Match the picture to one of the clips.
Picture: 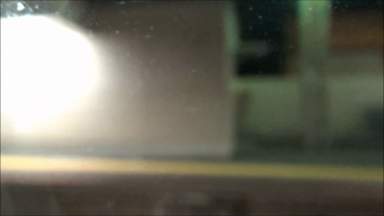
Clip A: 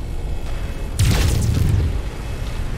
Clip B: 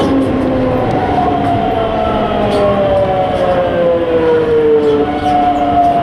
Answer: B